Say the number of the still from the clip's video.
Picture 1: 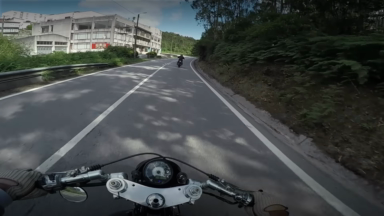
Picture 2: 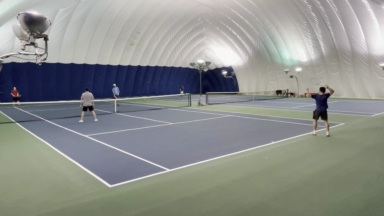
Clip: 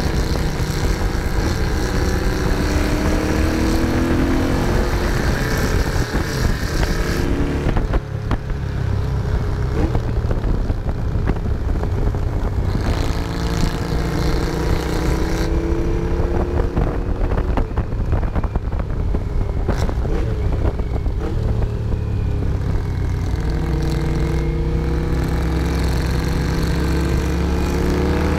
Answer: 1